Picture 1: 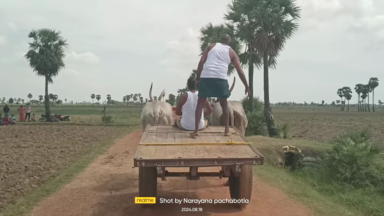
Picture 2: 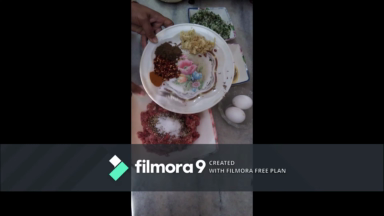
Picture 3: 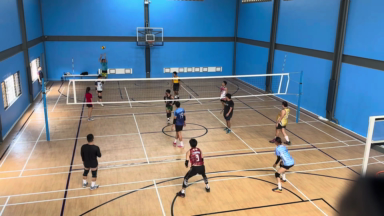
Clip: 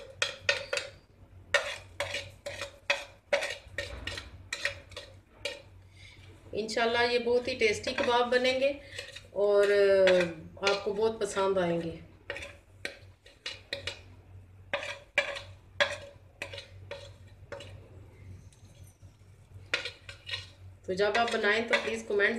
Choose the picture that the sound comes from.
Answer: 2